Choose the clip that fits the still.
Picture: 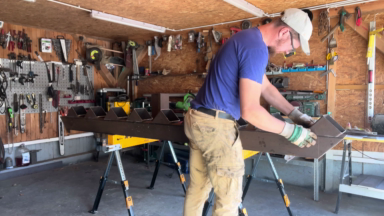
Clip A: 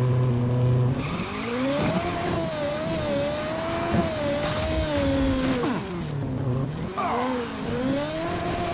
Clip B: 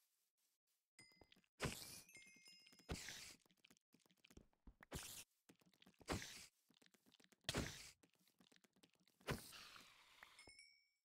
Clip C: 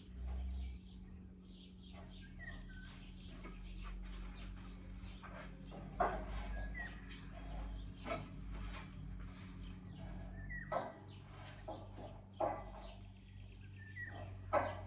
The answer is C